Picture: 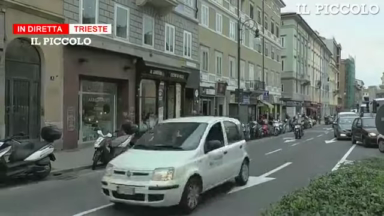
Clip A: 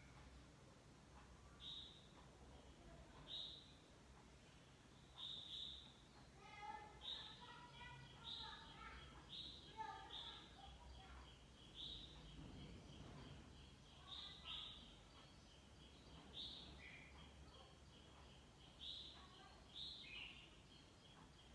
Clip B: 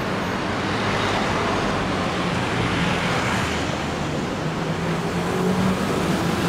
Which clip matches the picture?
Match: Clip B